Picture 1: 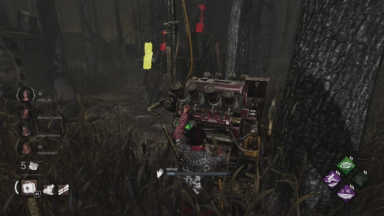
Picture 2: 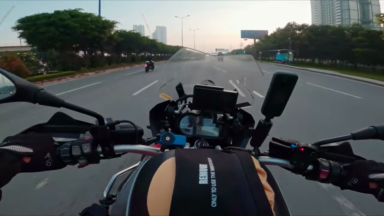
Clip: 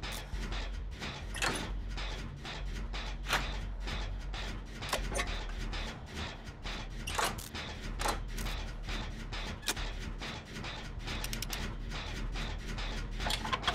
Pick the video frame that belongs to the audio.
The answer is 1